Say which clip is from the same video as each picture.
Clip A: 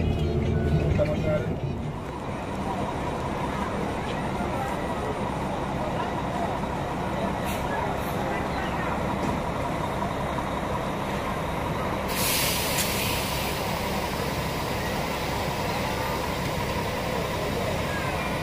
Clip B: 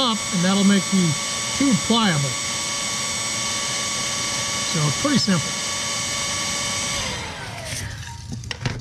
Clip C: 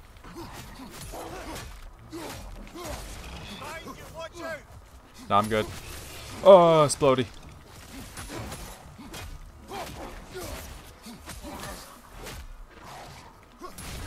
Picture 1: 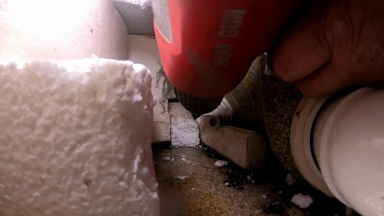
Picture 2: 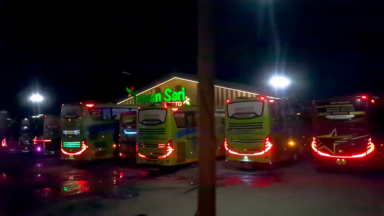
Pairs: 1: B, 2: A